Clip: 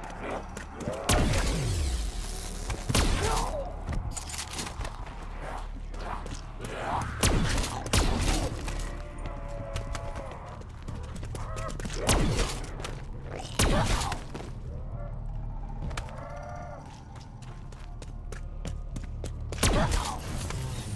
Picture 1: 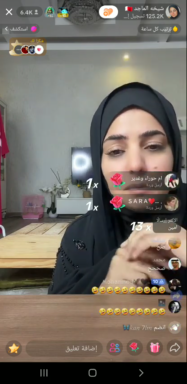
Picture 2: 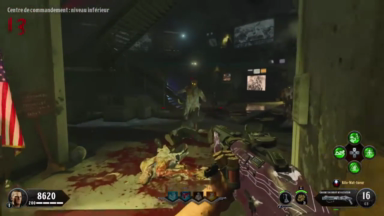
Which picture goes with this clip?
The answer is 2